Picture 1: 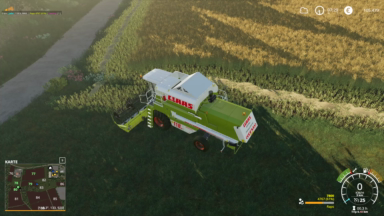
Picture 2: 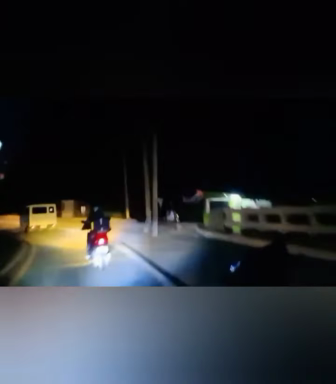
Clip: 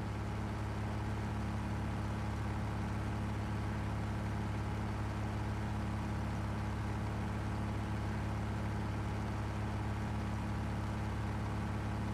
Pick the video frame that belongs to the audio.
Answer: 1